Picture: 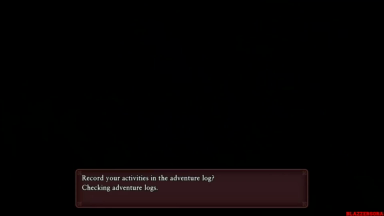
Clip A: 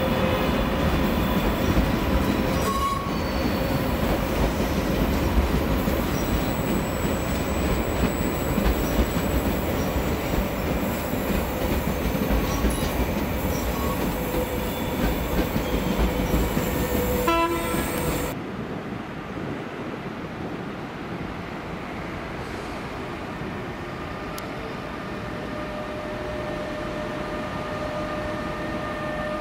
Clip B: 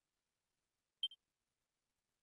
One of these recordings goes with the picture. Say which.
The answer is B